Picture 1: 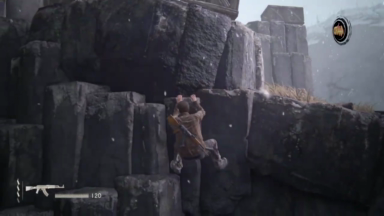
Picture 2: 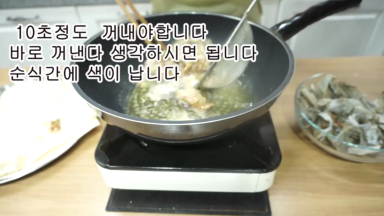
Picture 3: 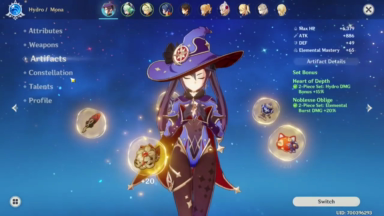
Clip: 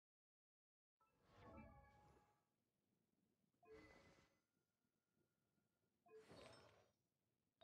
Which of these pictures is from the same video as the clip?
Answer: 3